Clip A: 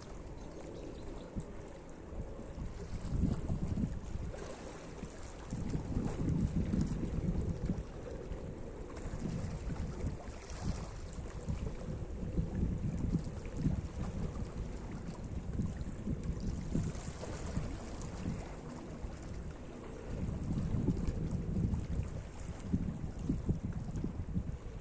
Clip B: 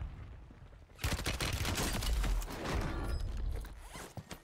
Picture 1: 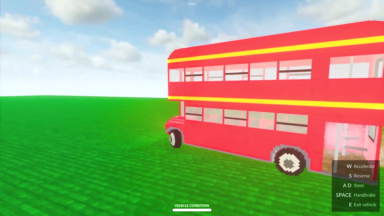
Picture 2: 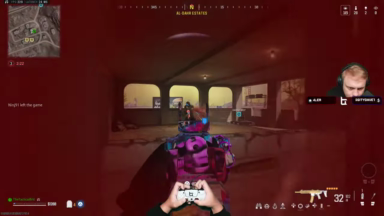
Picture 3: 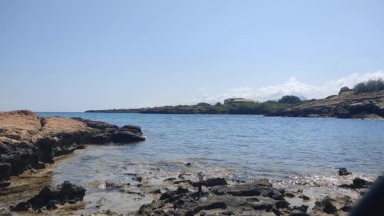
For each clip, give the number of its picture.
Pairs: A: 3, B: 2